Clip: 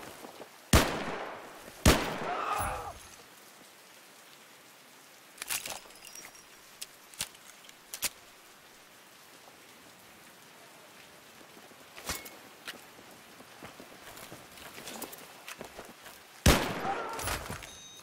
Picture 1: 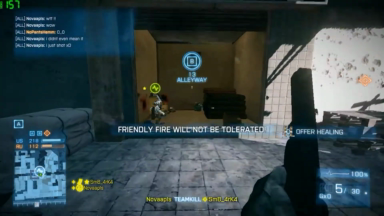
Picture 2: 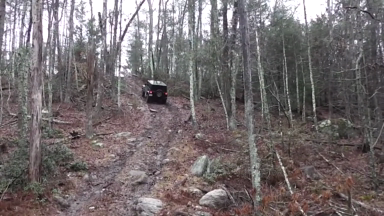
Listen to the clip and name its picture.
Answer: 1